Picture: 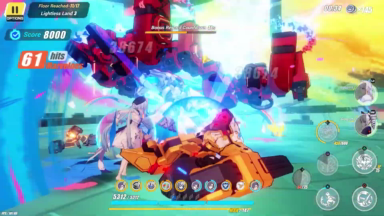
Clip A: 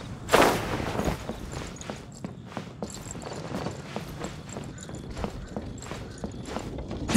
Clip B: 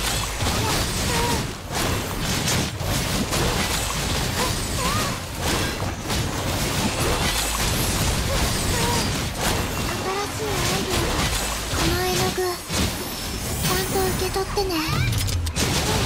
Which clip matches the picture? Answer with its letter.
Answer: B